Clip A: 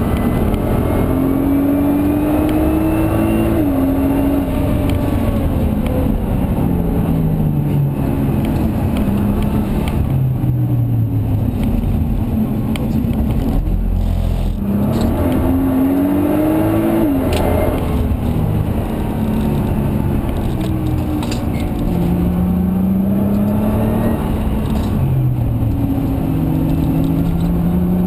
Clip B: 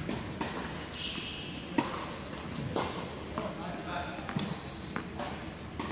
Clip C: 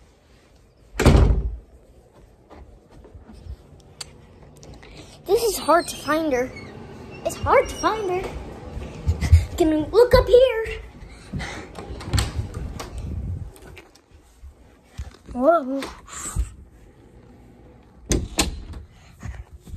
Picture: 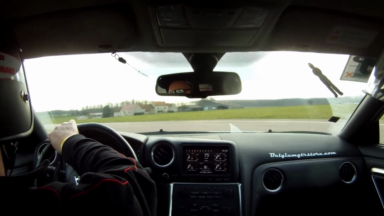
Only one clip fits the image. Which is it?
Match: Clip A